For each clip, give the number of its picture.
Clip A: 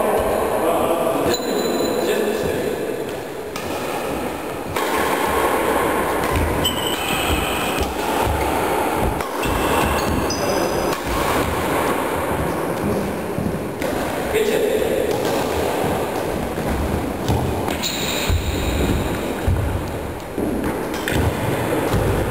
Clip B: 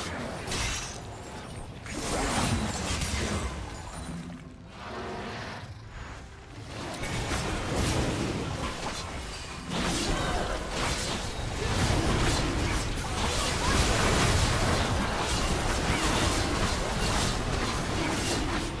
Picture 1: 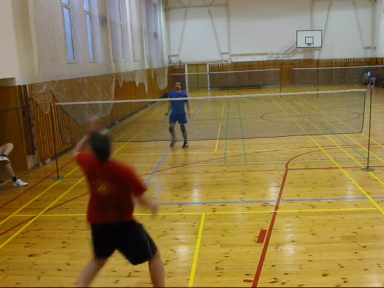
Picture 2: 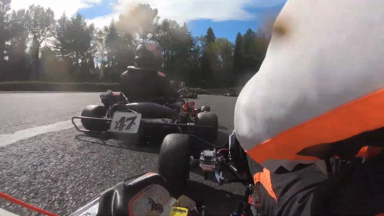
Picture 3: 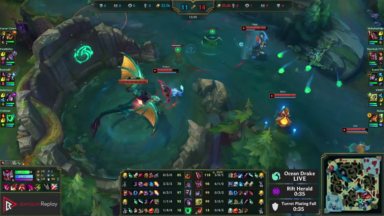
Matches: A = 1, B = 3